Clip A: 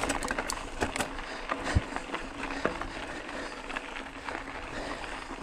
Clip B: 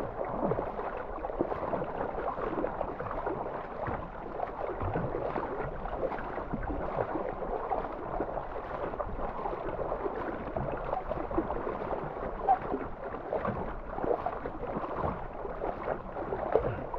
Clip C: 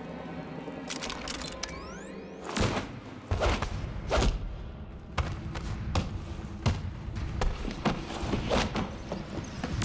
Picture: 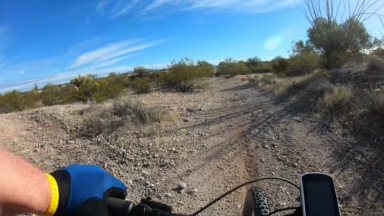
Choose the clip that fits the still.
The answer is A